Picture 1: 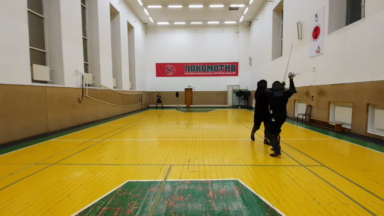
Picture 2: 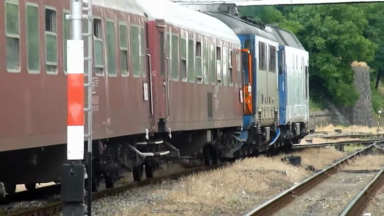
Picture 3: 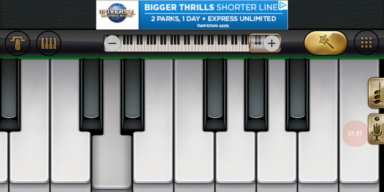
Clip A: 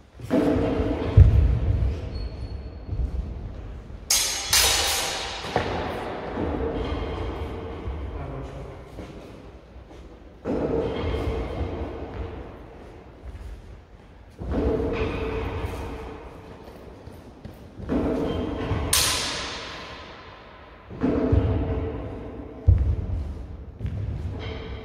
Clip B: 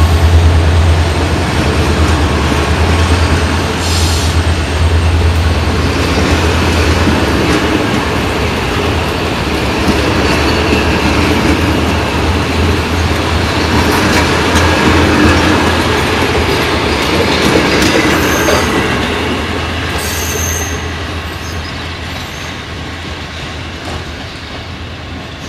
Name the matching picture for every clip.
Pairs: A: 1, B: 2